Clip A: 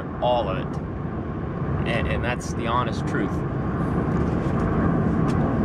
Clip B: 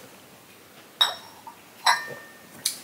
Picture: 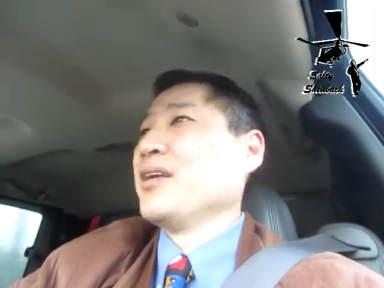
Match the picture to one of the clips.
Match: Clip A